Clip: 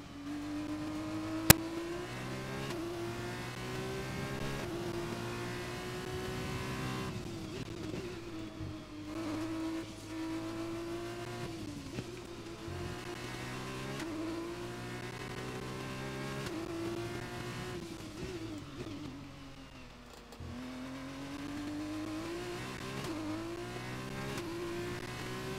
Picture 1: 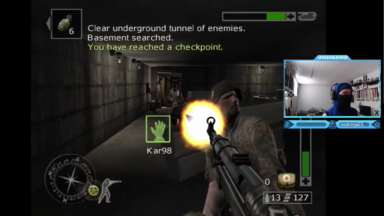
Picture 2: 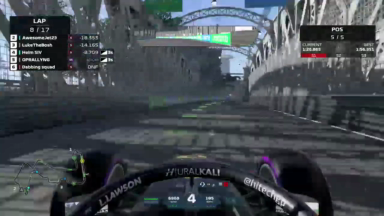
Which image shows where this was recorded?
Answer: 2